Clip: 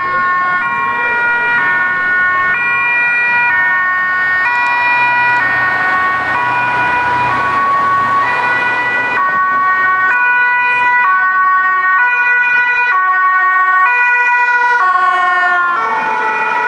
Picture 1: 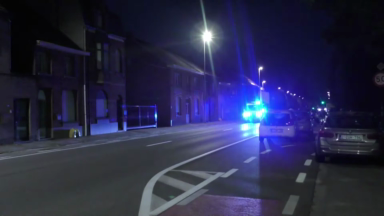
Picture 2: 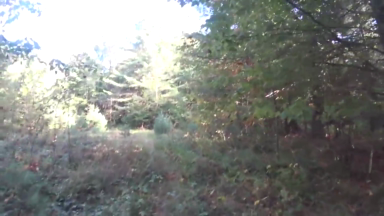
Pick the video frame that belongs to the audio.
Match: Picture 1